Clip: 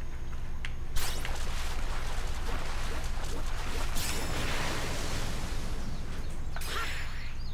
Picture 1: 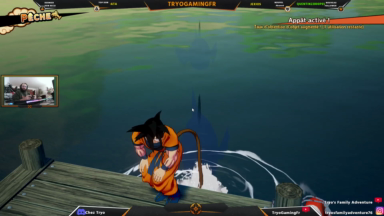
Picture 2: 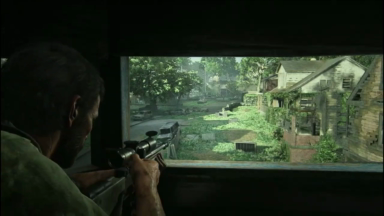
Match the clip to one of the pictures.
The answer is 1